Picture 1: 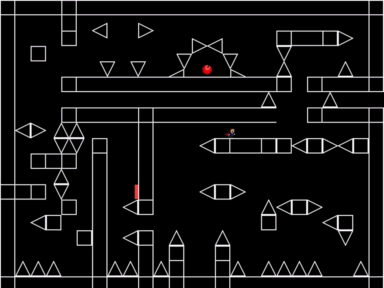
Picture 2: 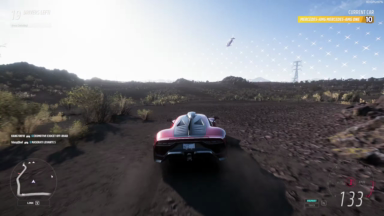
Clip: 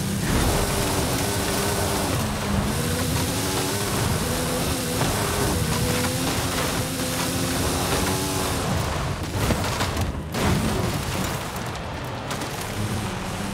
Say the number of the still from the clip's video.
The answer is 2